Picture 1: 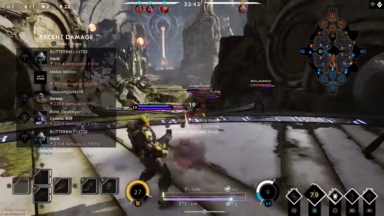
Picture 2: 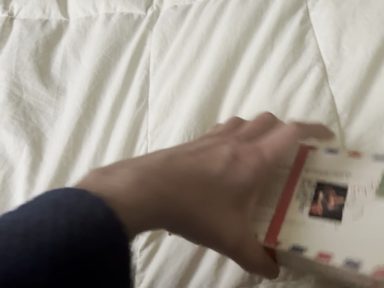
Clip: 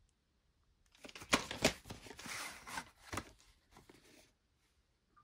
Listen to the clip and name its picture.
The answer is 2